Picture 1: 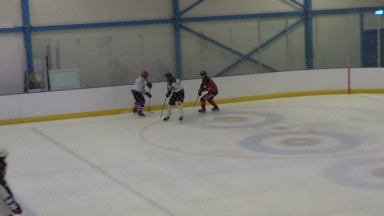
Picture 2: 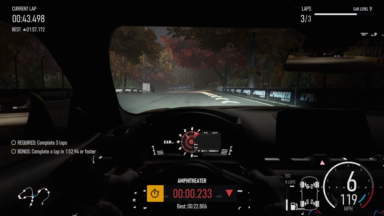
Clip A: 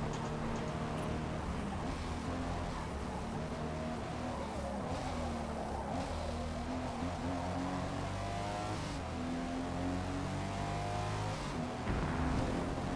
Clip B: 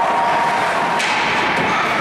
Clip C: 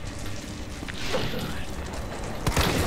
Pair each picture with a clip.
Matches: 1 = B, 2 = A